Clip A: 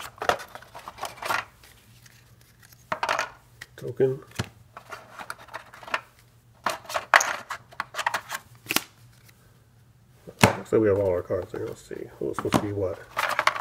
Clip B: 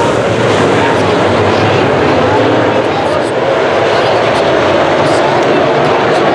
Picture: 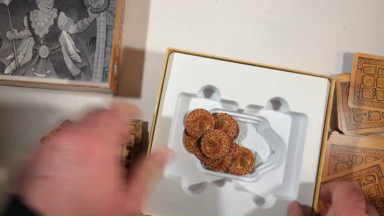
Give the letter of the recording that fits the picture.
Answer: A